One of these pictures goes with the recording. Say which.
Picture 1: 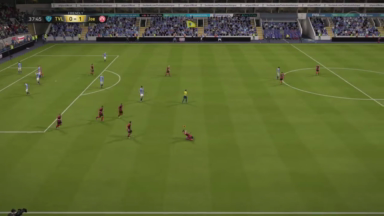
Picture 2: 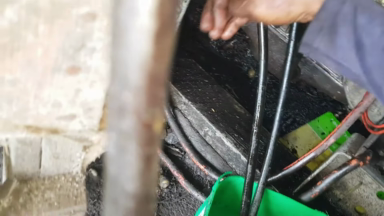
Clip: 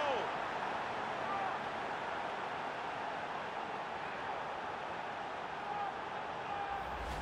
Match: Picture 1